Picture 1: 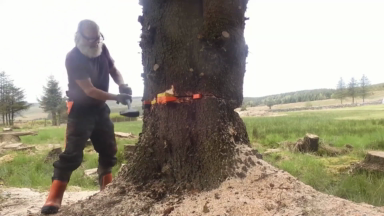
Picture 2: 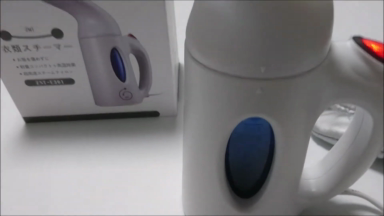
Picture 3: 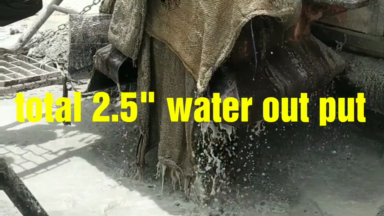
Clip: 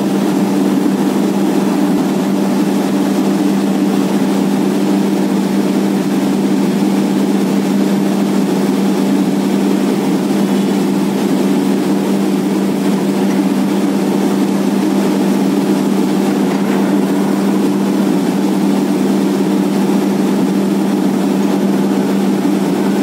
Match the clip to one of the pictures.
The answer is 3